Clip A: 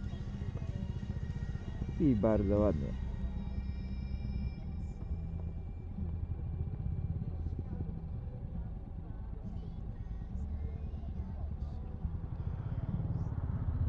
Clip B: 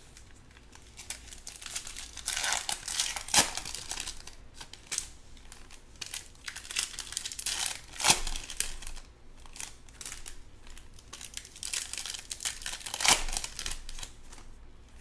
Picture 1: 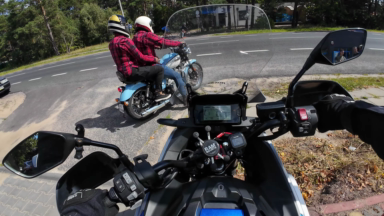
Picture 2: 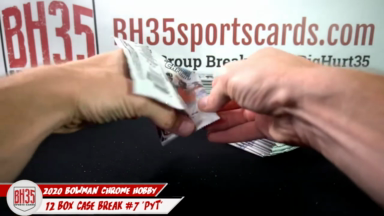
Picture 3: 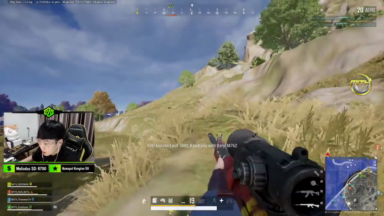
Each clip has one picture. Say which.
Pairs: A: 1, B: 2